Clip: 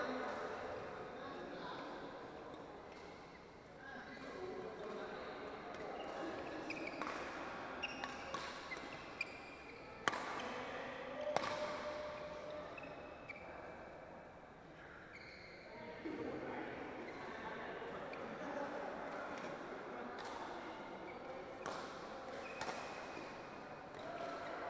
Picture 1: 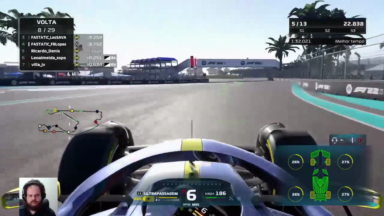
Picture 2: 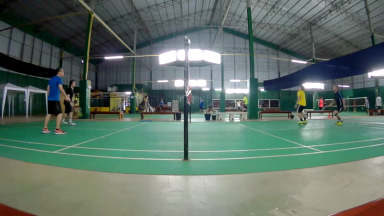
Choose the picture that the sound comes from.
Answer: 2